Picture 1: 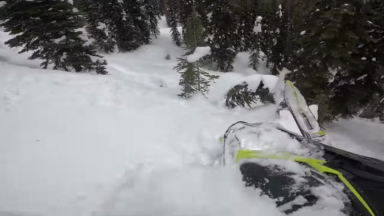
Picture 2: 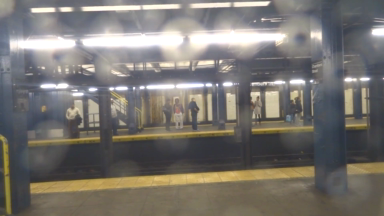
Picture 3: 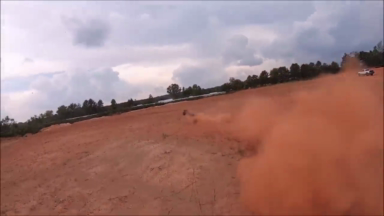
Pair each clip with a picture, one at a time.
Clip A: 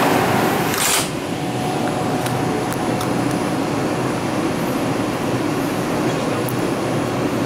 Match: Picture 2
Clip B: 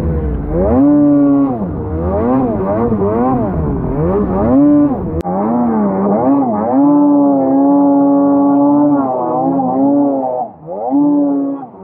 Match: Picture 1